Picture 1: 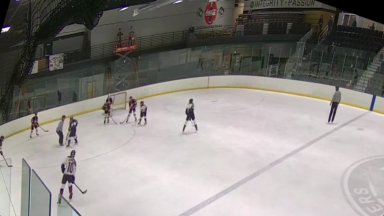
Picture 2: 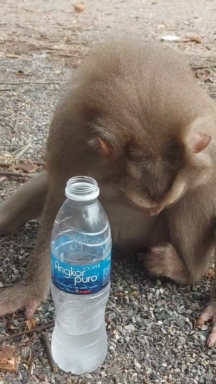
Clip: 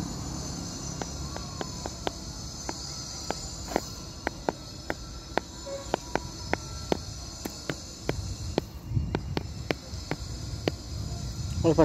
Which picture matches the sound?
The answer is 2